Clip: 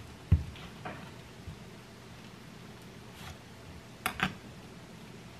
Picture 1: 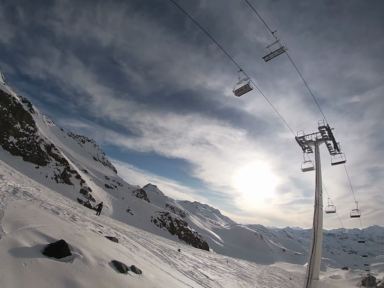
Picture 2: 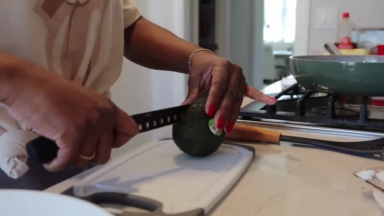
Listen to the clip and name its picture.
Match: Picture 2